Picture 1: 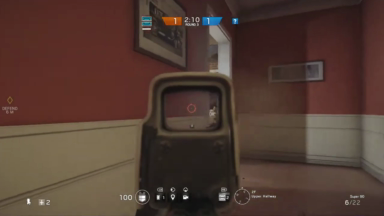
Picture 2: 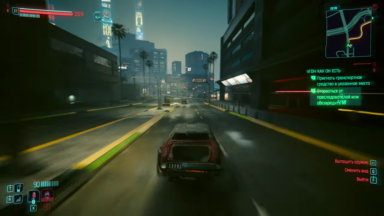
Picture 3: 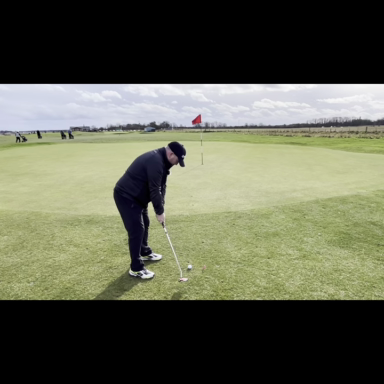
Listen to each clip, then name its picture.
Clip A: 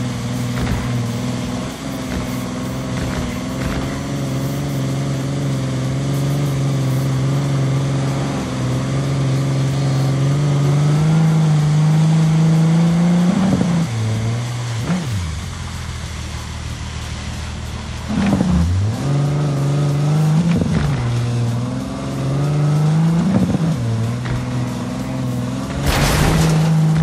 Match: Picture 2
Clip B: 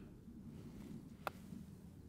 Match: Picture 3